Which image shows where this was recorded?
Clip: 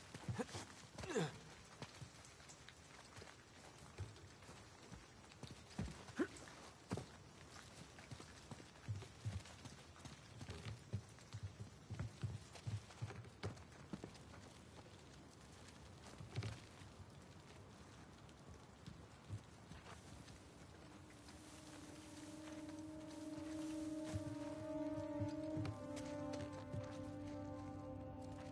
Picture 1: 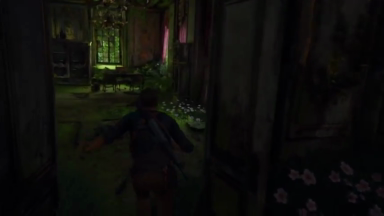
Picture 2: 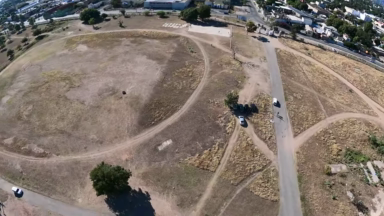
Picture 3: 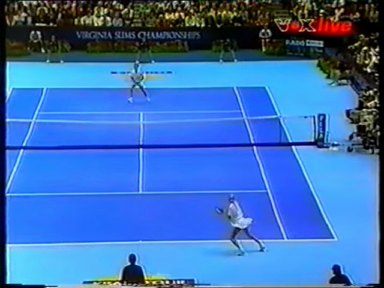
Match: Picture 1